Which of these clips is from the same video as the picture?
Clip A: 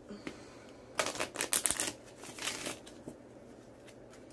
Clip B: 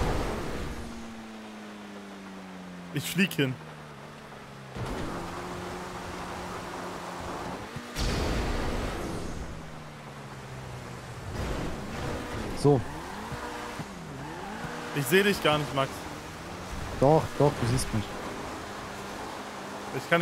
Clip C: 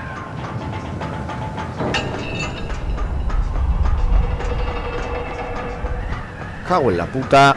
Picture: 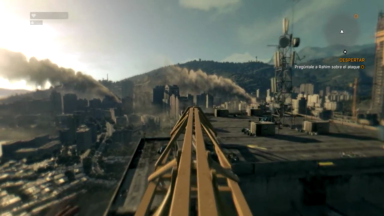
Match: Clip C